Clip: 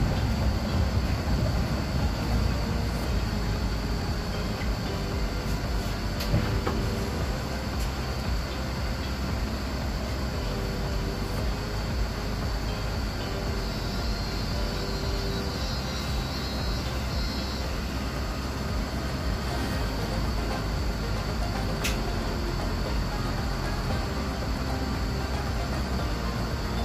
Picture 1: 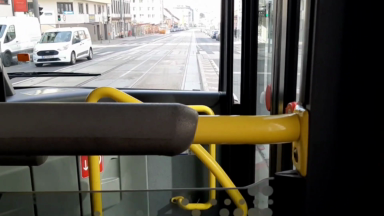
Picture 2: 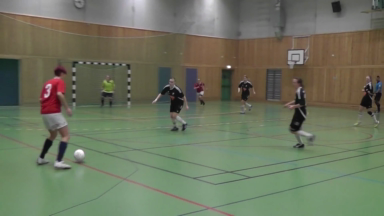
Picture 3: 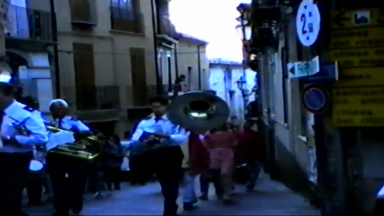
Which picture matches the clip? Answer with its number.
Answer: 1